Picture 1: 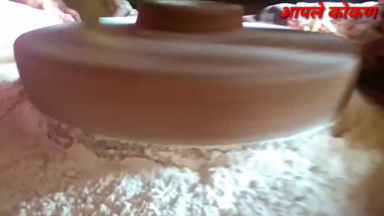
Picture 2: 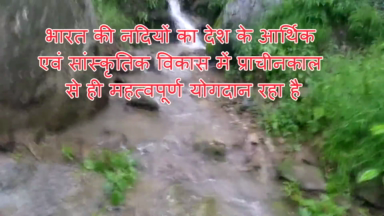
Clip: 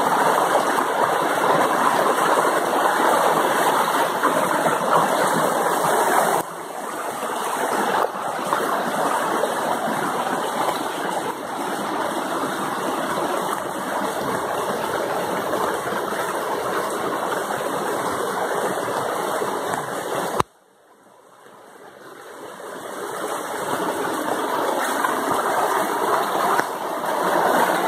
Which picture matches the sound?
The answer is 2